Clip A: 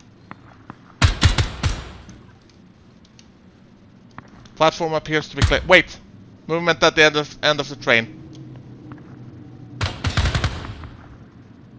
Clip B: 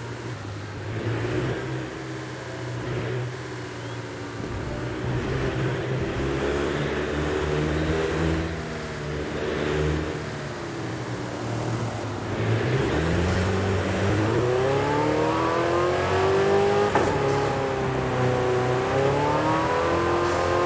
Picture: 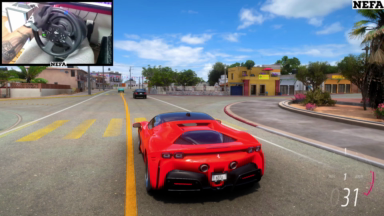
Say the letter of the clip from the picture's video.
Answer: B